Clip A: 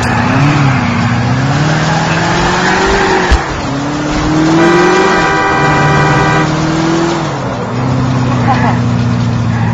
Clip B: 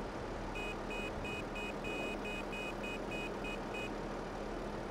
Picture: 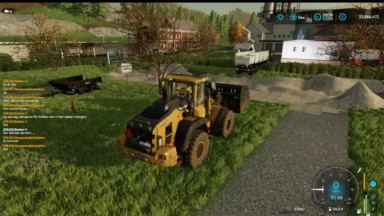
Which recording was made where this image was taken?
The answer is B